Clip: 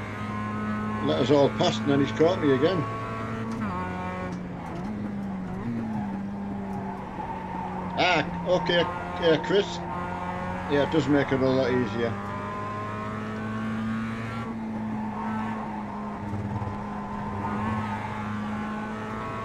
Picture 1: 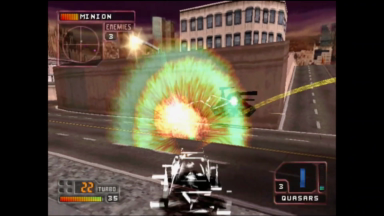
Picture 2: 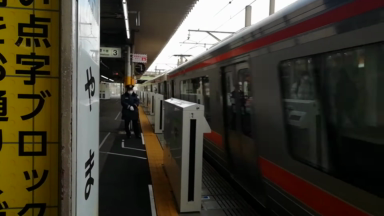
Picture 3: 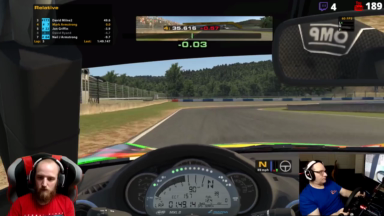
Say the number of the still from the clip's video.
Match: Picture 3